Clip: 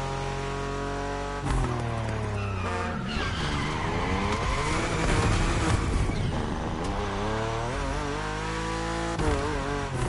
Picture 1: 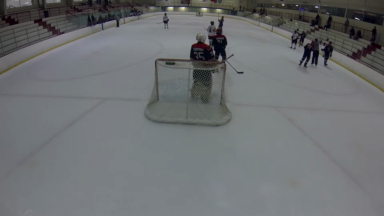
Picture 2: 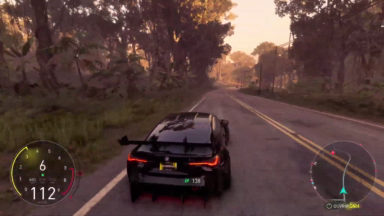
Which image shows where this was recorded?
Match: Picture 2